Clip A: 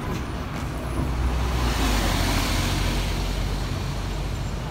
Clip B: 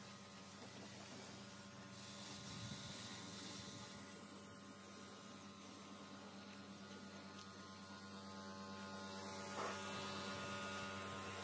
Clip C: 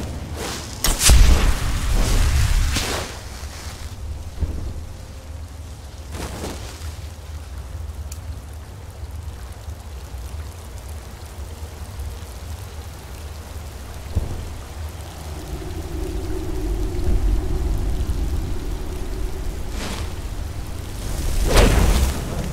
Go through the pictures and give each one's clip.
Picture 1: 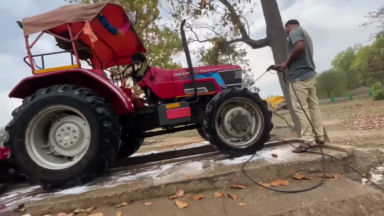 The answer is B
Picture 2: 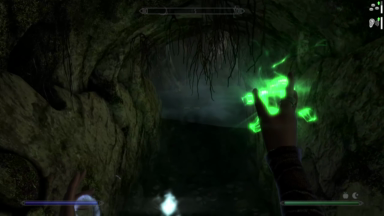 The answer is C